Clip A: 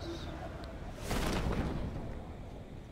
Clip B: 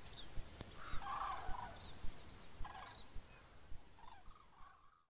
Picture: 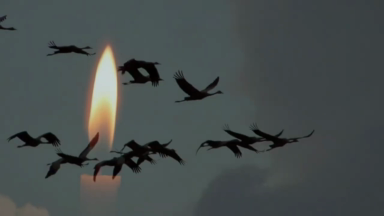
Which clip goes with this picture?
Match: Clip B